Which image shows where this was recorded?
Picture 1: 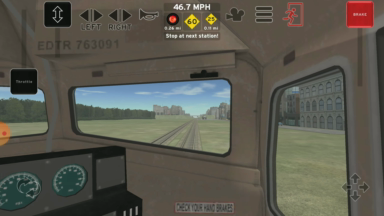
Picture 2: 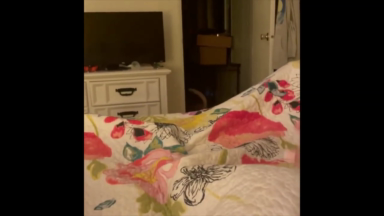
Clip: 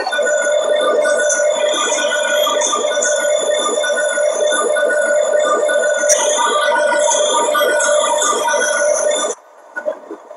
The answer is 1